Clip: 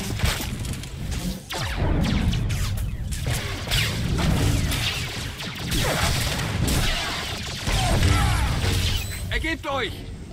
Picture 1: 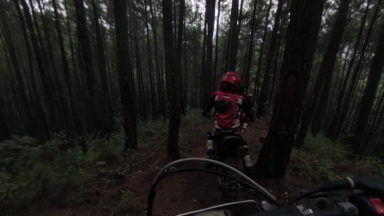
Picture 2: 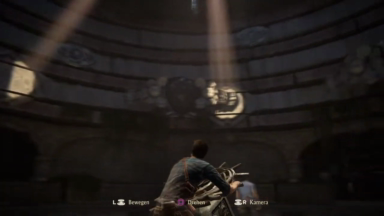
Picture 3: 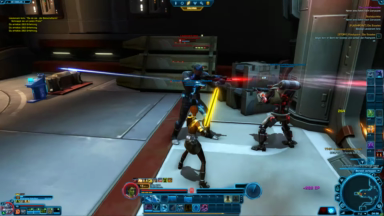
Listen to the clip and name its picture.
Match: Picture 3